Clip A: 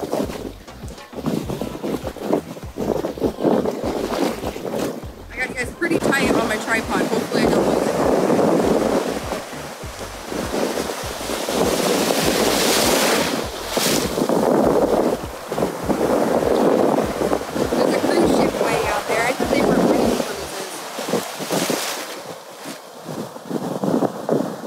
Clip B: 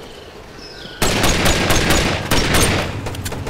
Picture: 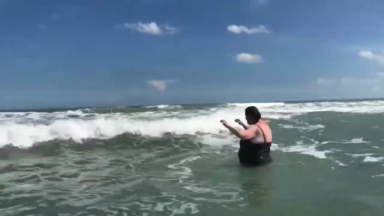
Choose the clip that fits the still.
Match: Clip A